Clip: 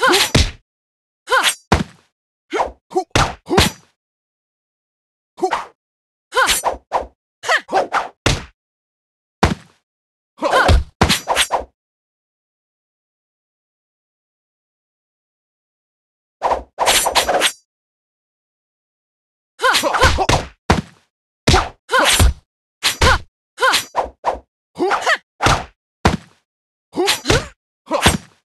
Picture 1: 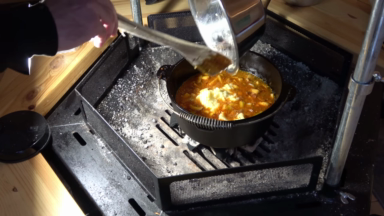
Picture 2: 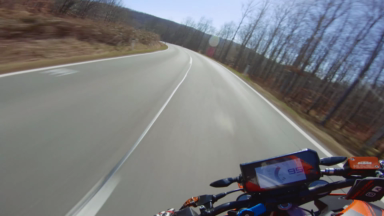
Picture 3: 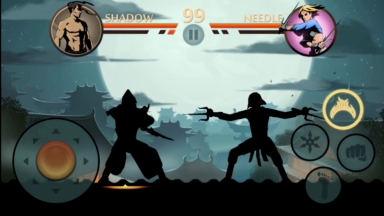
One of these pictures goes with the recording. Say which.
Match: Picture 3